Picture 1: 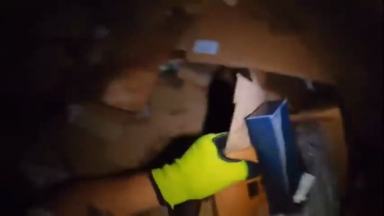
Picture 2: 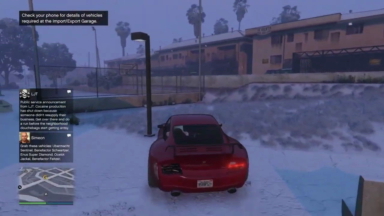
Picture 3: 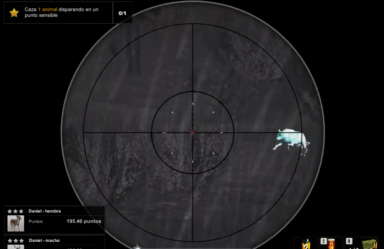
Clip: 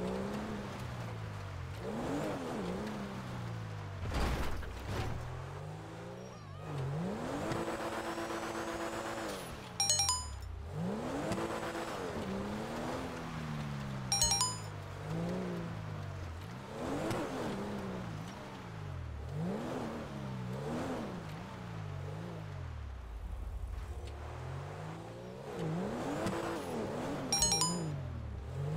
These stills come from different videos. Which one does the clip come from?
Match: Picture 2